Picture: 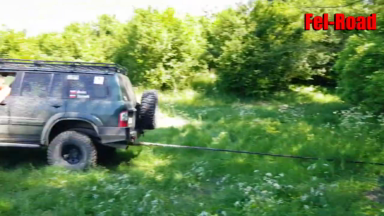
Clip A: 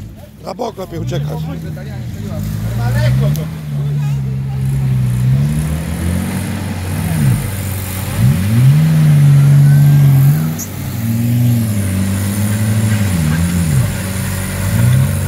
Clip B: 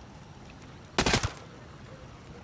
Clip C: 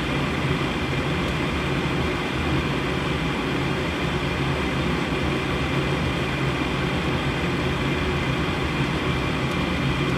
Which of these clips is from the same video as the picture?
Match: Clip A